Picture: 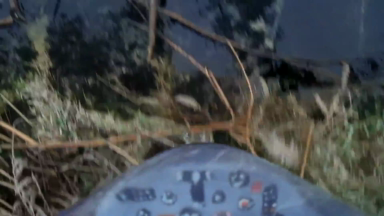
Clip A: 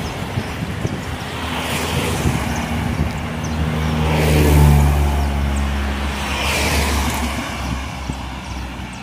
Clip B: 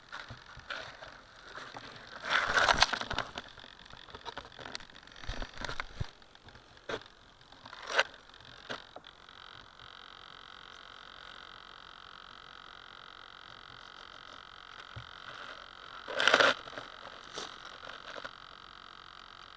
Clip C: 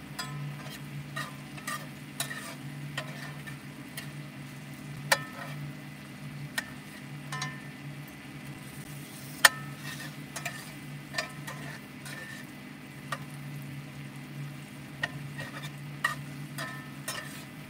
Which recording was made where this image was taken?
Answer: B